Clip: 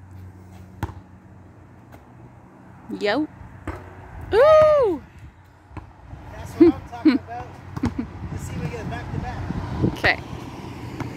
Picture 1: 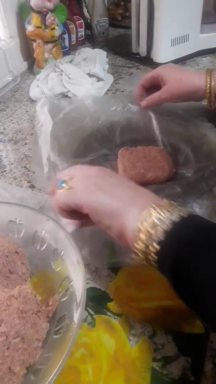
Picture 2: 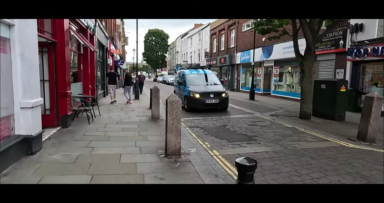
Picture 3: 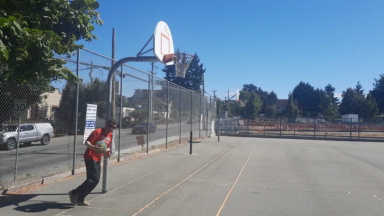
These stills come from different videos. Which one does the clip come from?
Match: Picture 3